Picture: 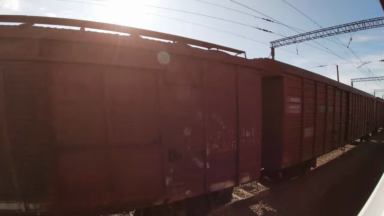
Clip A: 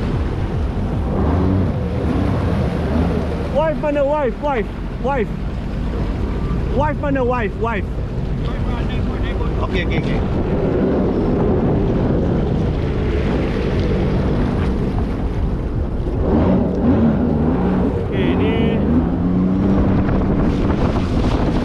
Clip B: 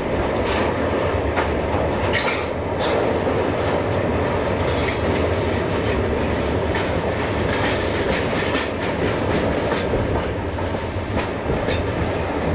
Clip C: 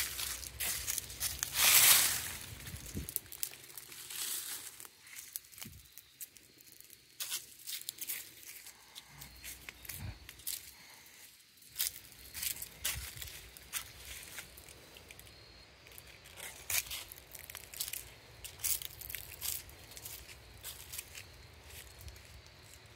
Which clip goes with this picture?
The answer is B